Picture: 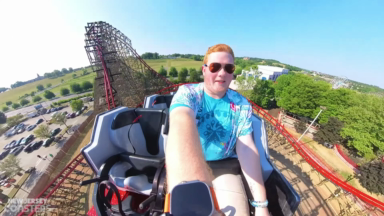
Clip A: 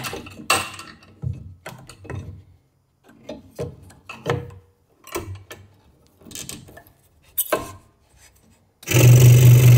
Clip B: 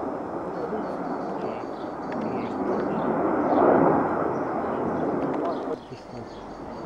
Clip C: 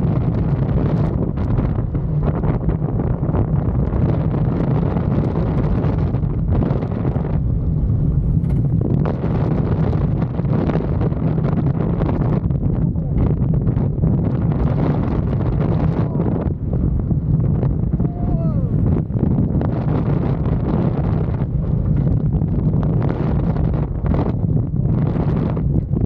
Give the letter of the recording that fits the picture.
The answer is C